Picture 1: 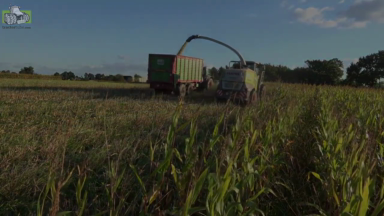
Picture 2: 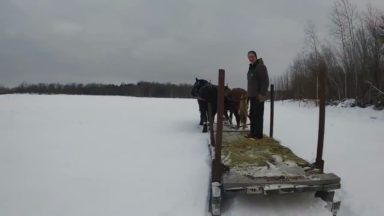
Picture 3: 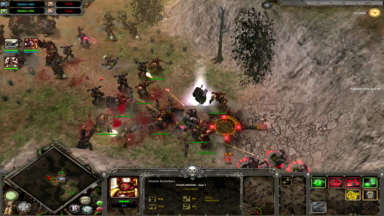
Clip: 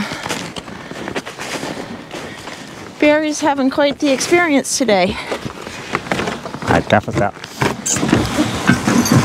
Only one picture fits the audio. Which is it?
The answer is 2